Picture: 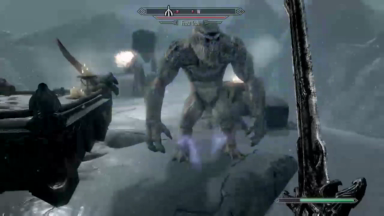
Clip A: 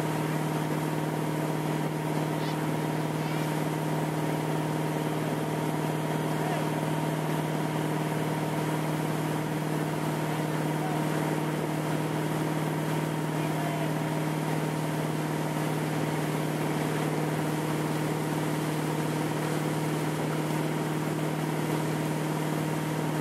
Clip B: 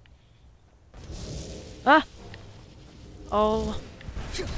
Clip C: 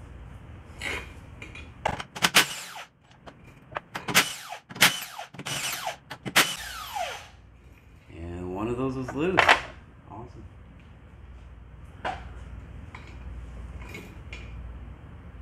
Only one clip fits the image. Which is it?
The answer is B